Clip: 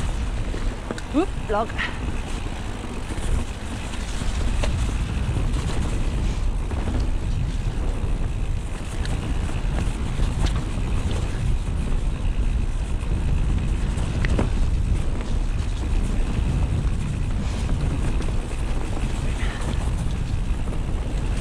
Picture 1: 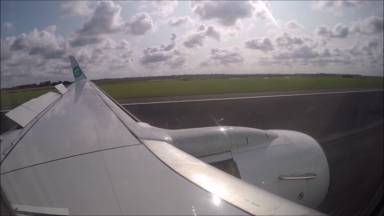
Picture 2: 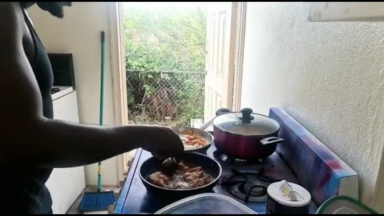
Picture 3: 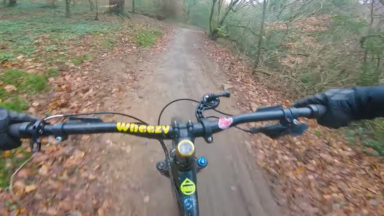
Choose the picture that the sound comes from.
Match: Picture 3